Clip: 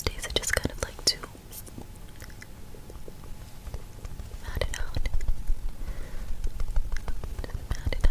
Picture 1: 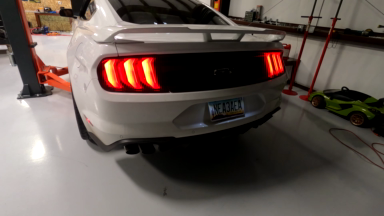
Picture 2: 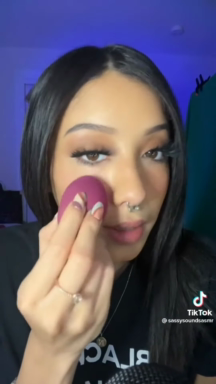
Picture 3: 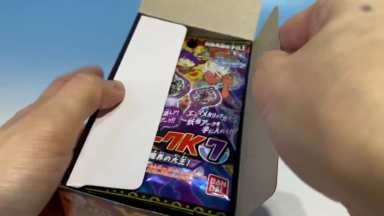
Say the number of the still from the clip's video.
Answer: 2